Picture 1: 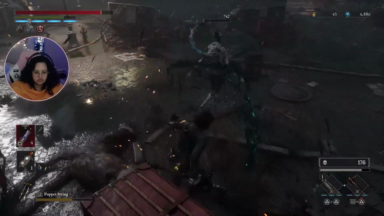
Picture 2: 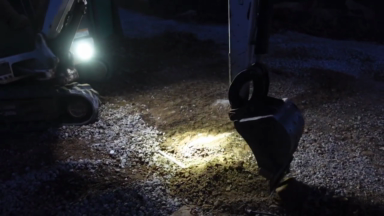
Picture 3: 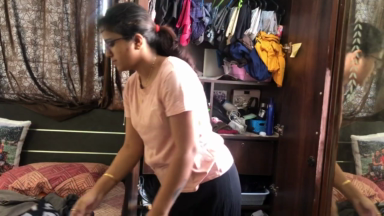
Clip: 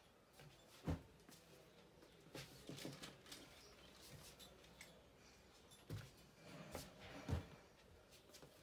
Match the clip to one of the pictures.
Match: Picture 3